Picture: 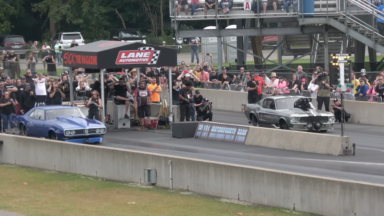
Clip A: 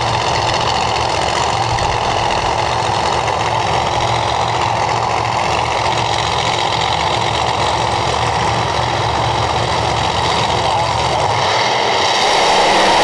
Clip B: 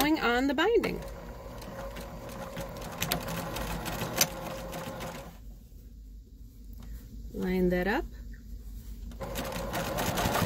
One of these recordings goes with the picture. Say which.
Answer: A